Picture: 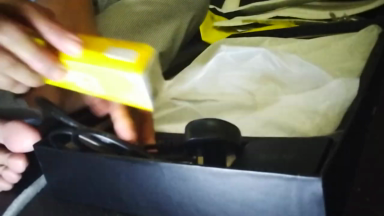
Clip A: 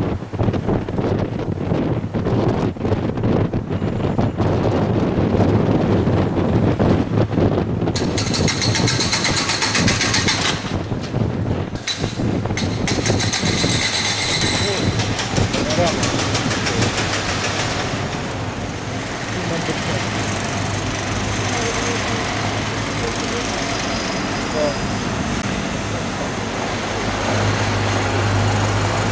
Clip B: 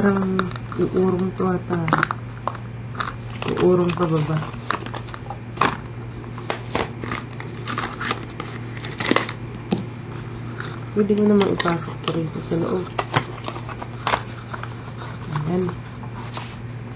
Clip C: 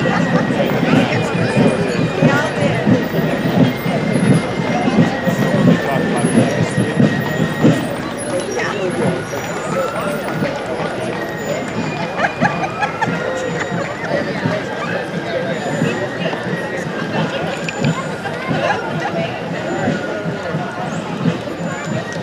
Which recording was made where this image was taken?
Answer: B